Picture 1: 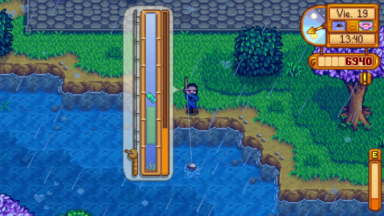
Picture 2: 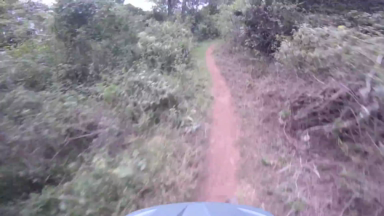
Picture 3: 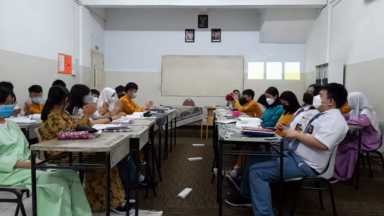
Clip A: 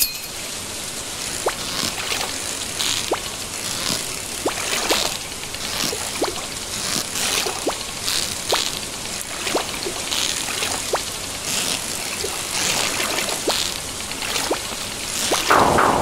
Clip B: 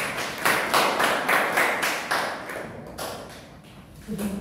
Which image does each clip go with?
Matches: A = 1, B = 3